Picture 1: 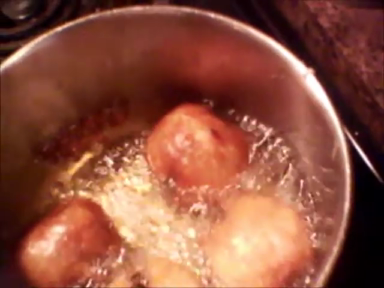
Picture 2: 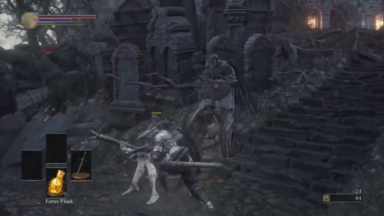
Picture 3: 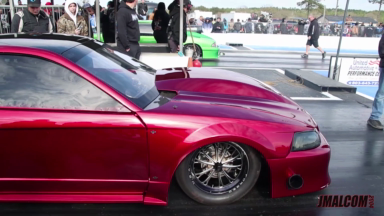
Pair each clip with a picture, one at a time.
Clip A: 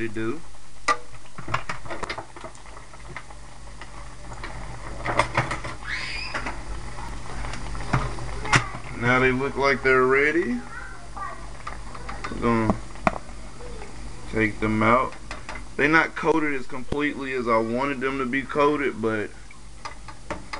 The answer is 1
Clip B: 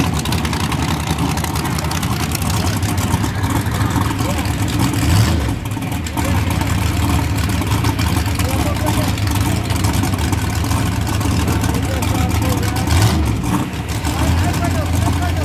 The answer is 3